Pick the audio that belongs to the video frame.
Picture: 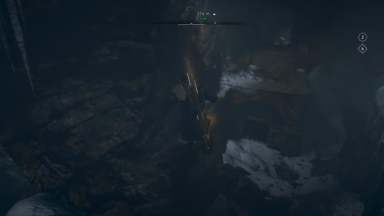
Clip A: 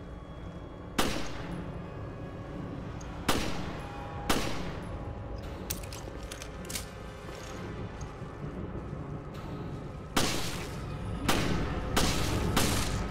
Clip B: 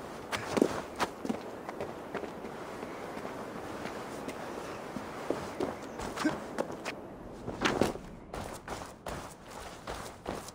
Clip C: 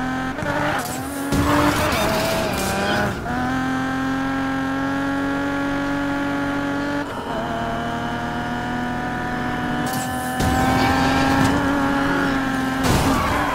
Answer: B